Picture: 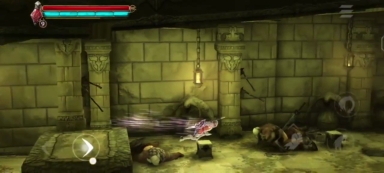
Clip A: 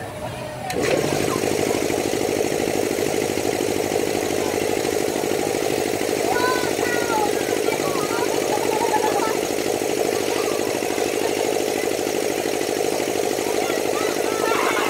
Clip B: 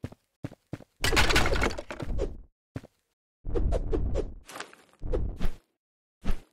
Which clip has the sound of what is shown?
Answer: B